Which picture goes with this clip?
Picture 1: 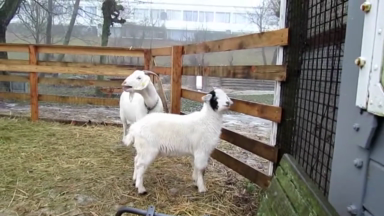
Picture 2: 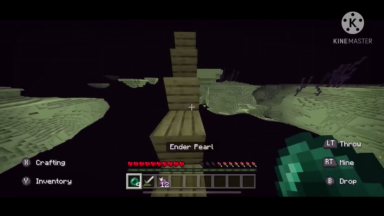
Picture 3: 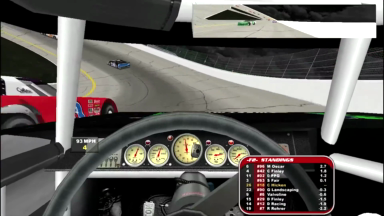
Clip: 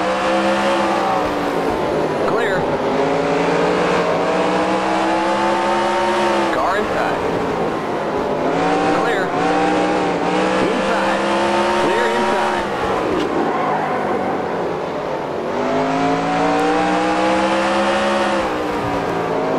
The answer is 3